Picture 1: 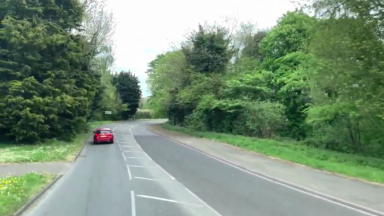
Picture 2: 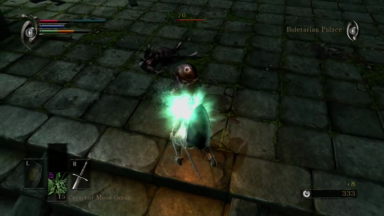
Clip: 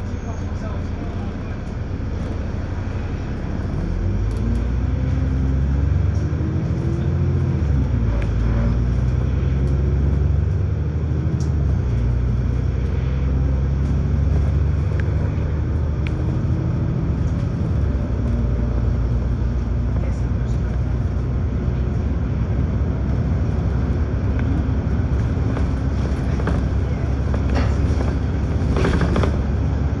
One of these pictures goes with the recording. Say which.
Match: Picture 1